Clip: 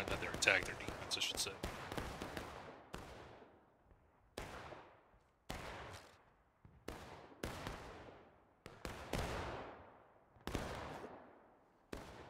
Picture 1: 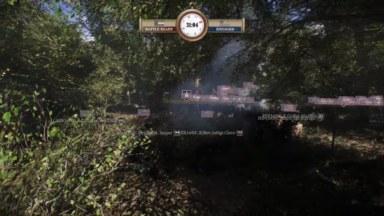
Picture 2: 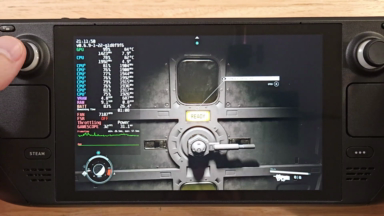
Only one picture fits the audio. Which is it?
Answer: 1